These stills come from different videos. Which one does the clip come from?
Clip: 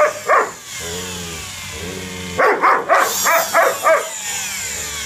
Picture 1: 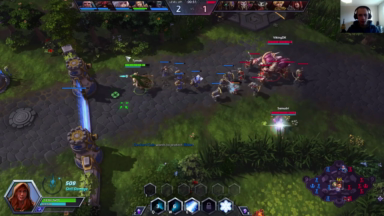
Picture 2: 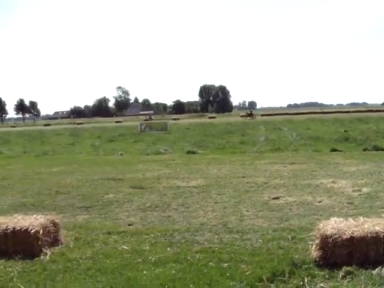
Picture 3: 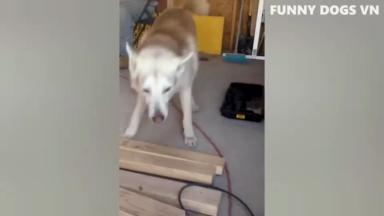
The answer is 3